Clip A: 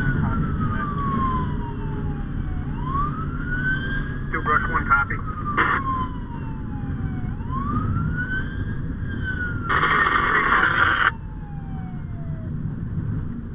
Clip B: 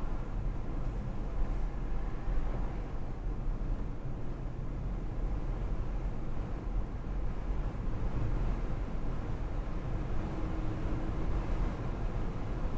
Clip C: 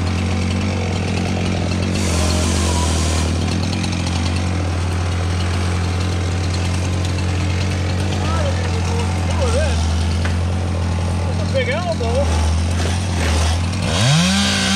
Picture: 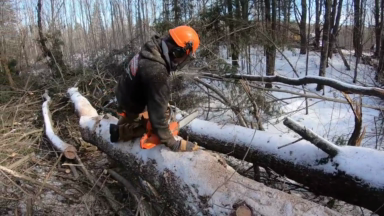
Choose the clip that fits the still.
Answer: C